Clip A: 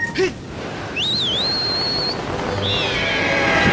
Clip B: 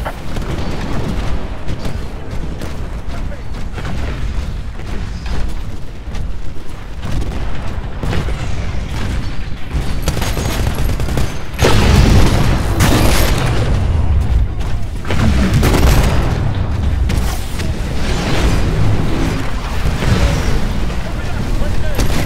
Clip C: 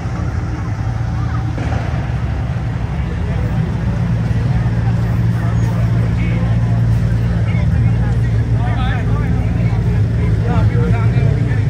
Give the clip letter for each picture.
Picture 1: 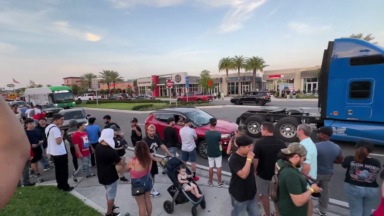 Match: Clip C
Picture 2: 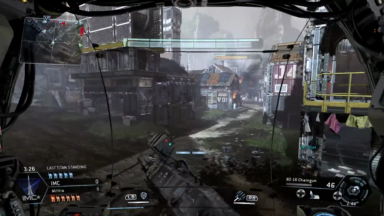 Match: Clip B